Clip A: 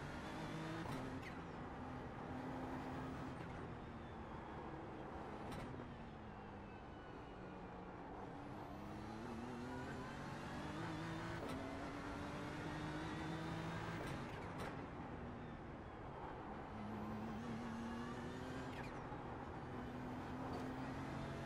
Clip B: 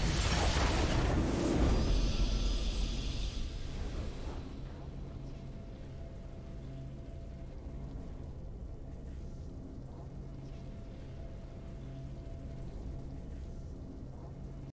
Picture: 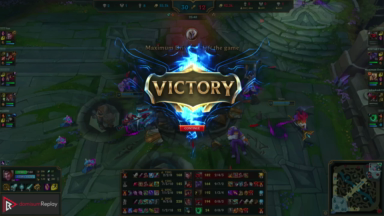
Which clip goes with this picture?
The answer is B